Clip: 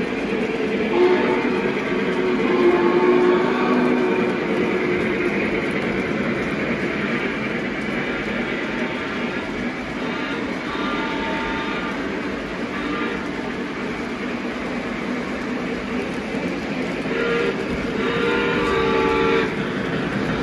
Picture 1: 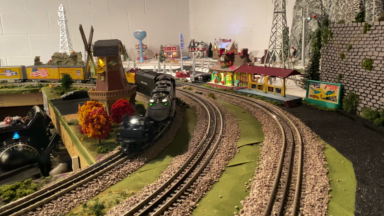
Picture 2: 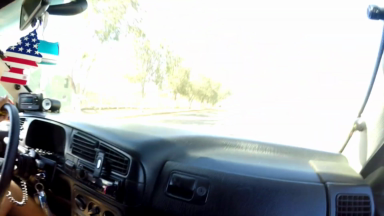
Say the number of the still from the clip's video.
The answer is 1